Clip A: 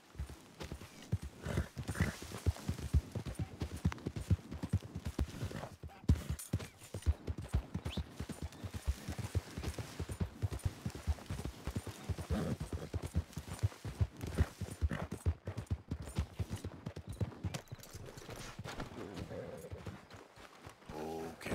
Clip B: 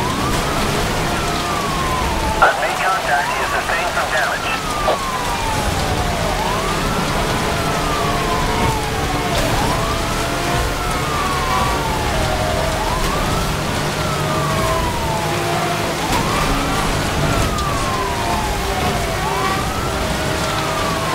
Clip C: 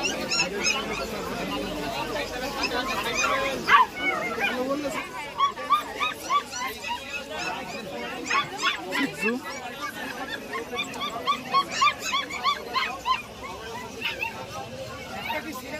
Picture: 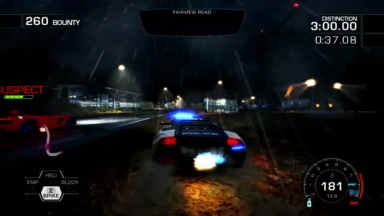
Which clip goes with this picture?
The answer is B